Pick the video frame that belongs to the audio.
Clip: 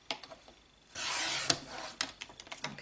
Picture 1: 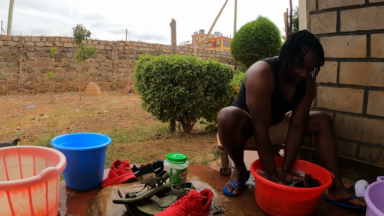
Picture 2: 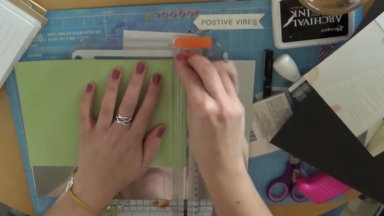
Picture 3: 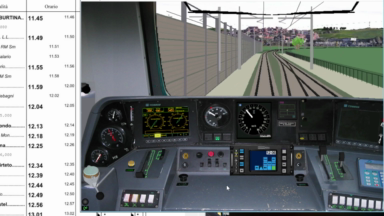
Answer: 2